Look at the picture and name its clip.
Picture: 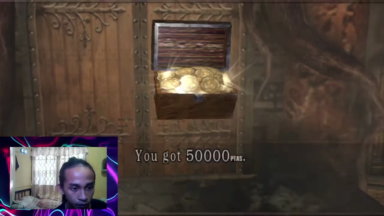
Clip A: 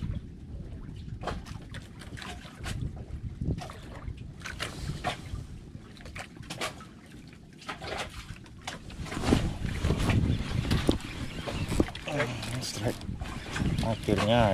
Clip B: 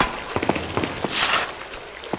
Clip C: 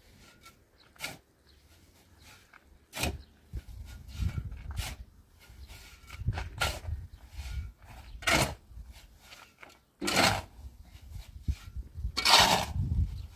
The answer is B